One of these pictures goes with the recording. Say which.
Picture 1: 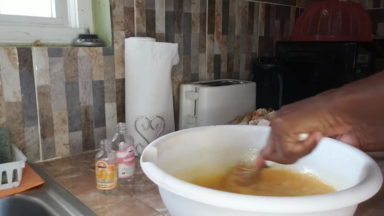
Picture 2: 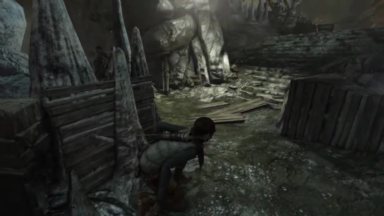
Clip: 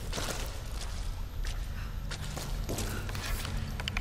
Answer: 2